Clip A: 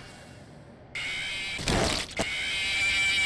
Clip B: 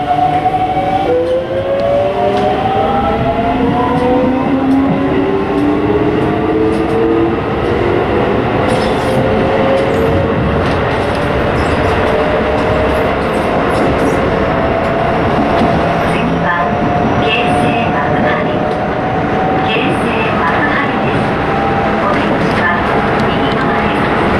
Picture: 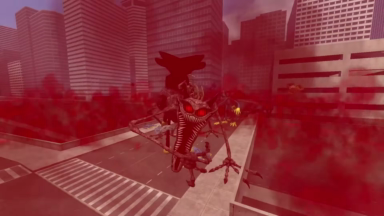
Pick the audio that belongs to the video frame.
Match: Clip A